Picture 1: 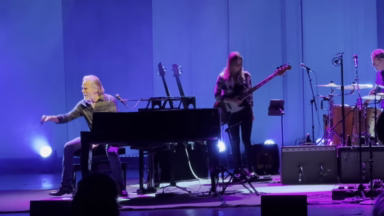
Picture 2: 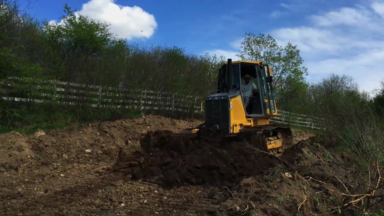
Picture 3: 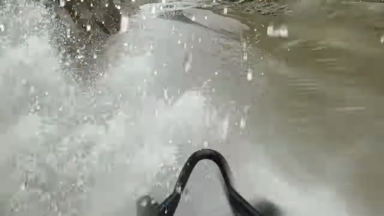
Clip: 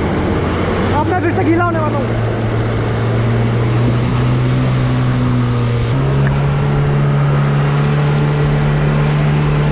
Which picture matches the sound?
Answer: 3